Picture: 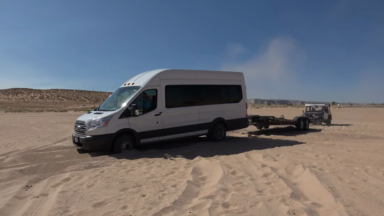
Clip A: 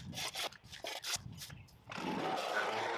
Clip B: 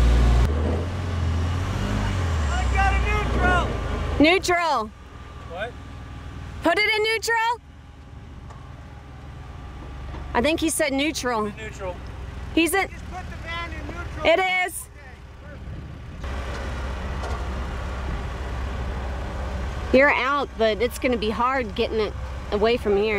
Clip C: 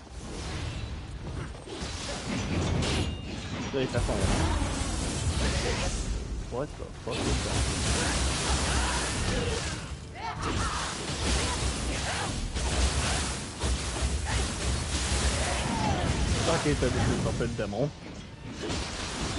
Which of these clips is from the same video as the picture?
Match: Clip B